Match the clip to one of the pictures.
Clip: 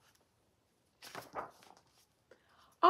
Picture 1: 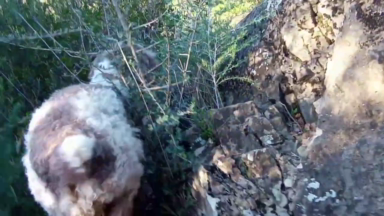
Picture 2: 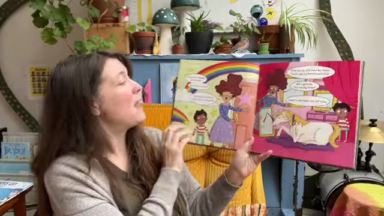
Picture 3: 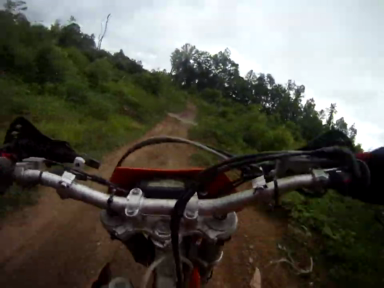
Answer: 2